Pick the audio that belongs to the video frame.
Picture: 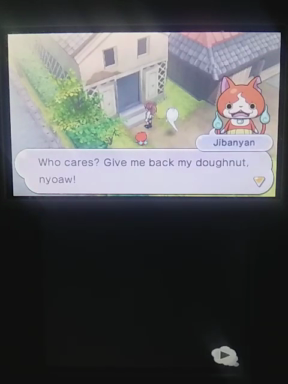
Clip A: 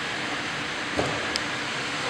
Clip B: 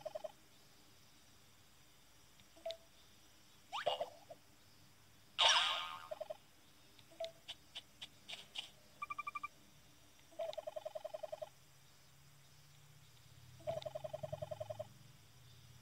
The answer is B